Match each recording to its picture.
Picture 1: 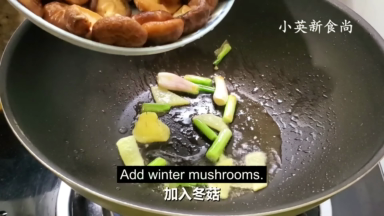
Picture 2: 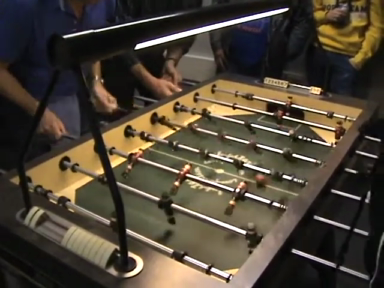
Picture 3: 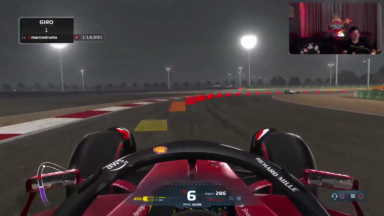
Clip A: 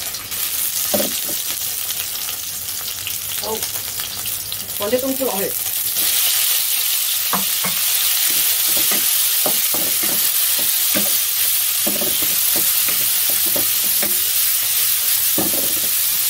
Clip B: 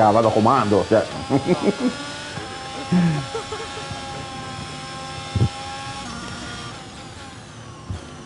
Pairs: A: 1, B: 3